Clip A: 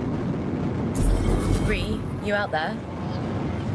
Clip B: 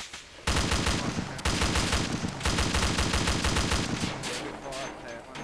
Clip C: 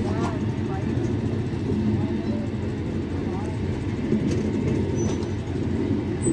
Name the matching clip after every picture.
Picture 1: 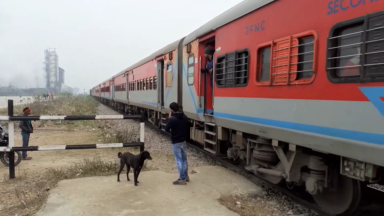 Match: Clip C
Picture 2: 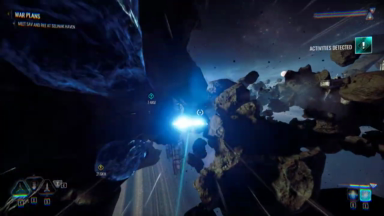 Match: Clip A